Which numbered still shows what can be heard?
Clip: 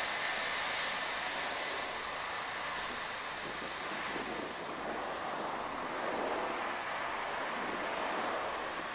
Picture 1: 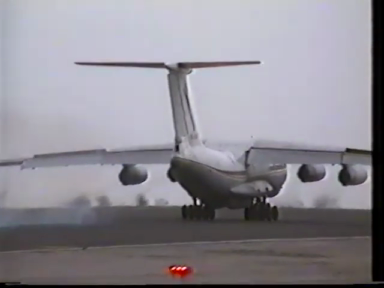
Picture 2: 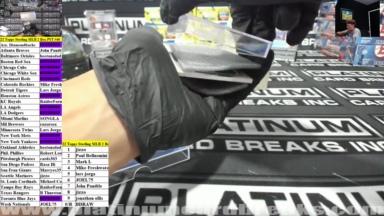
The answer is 1